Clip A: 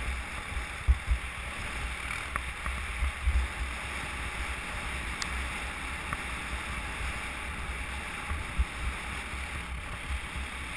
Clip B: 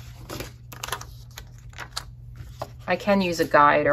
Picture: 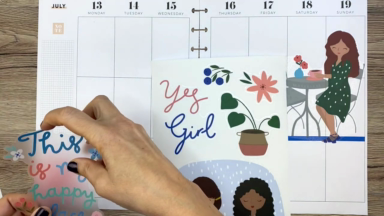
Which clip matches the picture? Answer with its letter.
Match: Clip B